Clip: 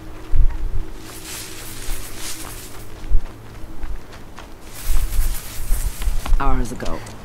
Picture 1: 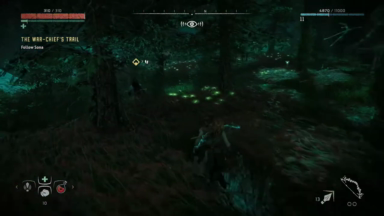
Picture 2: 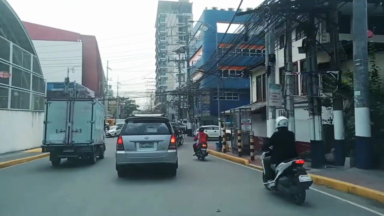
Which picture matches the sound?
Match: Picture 1